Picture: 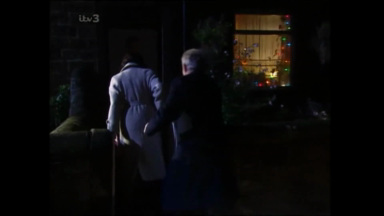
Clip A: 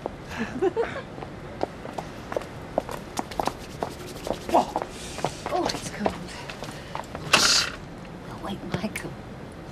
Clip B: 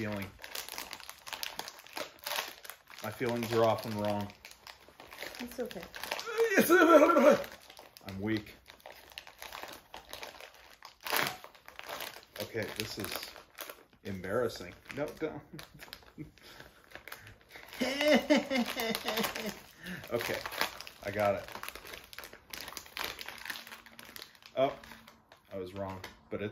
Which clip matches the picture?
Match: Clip A